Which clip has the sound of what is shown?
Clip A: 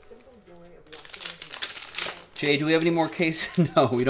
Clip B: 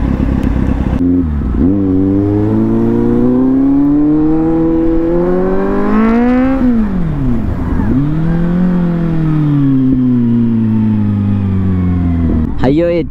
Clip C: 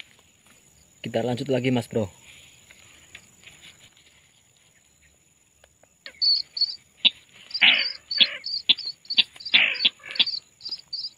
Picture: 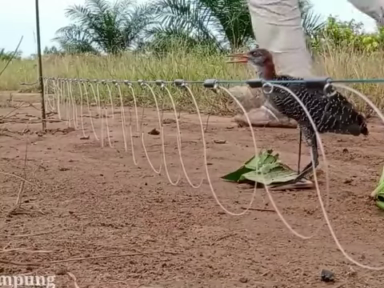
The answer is C